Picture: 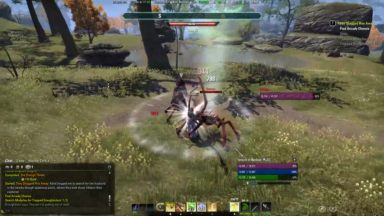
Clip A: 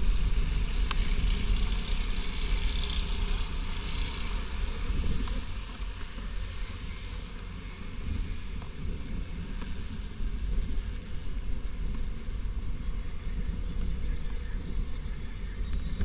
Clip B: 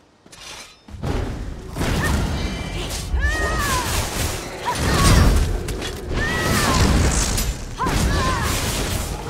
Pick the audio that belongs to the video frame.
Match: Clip B